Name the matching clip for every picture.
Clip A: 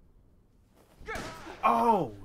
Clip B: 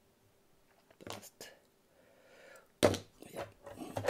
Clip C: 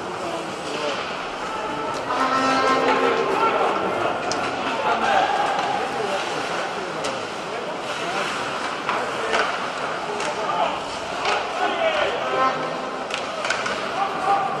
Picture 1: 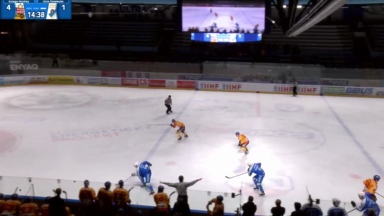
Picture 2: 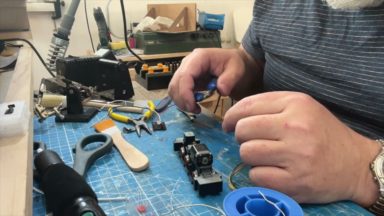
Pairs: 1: C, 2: B